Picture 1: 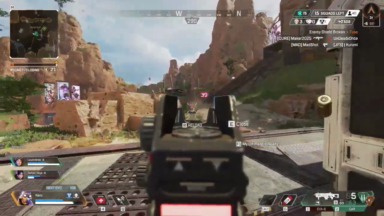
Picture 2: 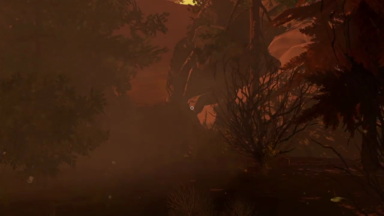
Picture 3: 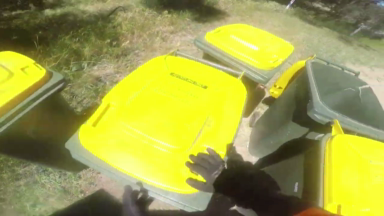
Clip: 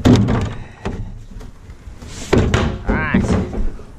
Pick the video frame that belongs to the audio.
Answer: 3